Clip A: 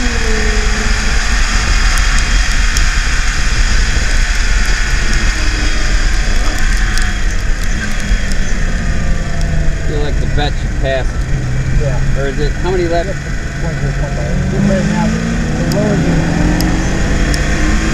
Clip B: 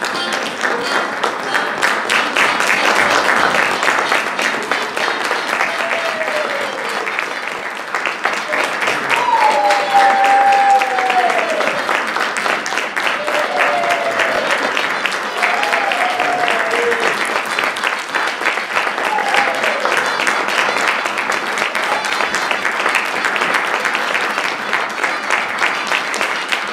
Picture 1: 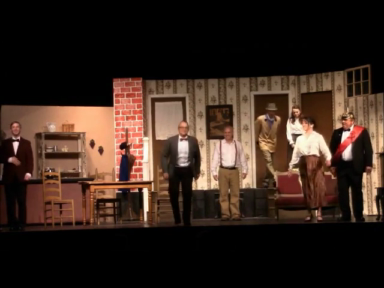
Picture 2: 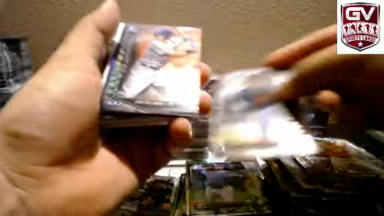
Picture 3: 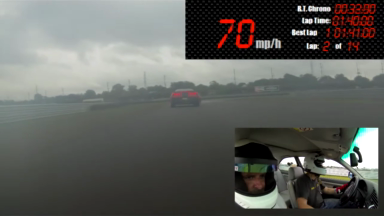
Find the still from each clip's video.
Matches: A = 3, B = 1